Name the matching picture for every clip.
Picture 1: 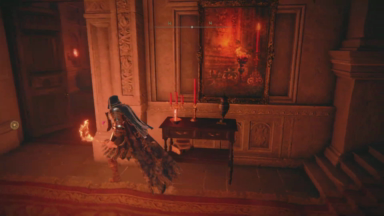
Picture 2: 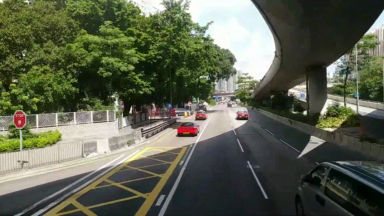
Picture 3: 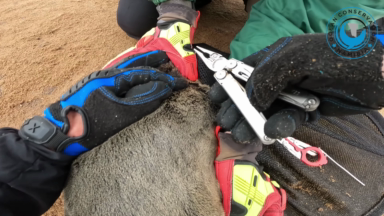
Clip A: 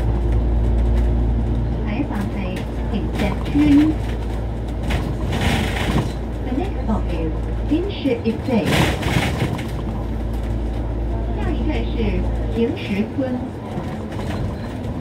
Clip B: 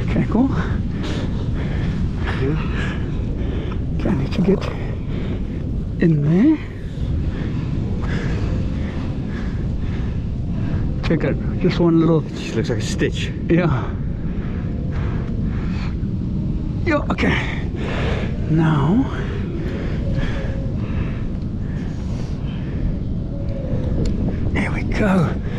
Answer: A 2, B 3